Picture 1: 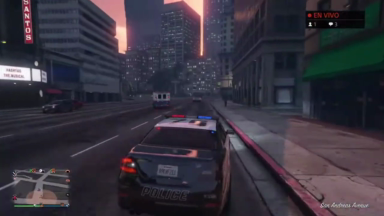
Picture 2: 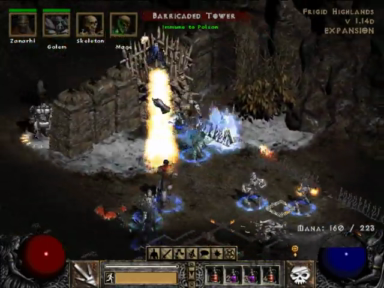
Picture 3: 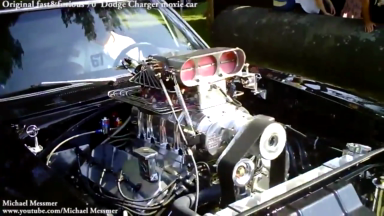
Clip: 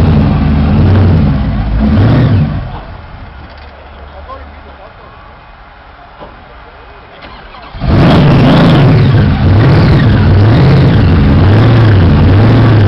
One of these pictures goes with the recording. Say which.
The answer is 3